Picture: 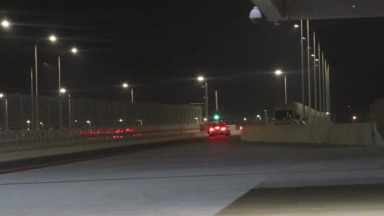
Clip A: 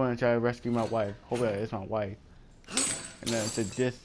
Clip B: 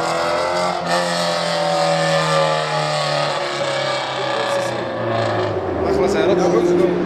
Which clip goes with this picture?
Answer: B